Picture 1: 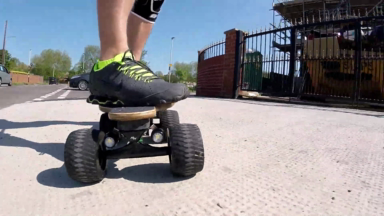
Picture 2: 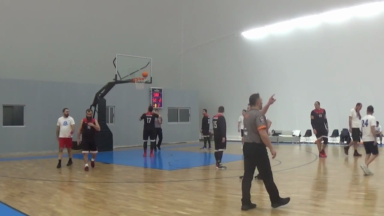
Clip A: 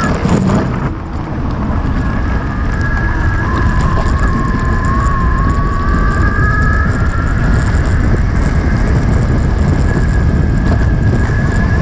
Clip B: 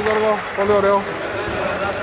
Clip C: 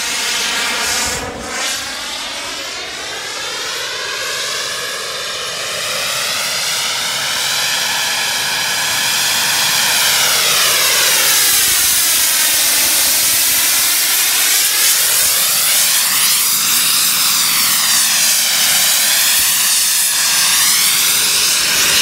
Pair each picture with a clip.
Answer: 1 A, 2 B